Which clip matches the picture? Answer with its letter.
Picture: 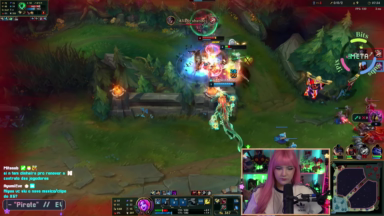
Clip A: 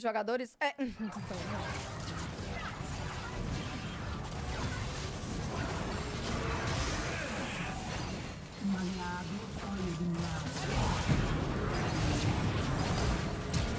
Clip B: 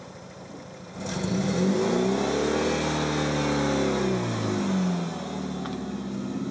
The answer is A